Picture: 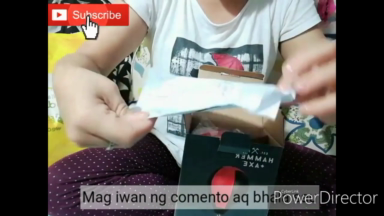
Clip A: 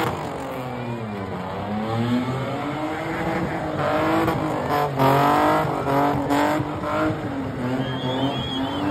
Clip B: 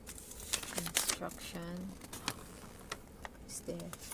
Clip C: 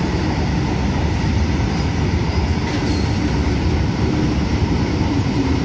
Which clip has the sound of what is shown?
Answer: B